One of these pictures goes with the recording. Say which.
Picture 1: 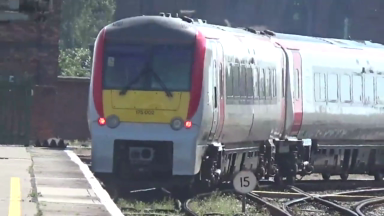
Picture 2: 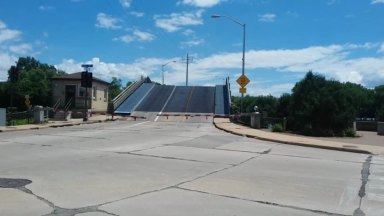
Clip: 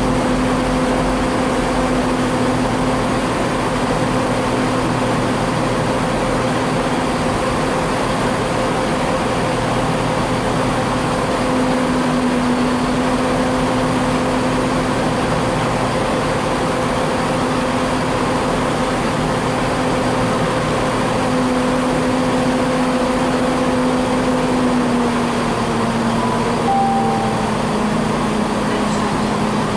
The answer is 1